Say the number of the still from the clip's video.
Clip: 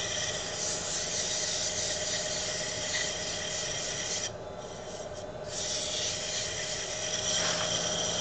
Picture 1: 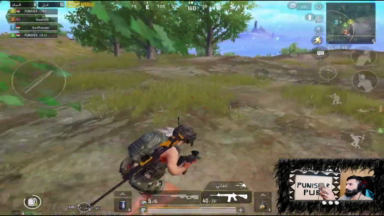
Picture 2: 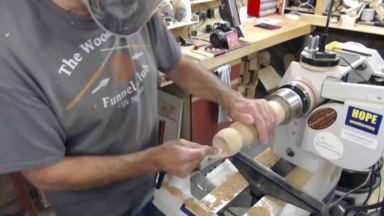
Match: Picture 2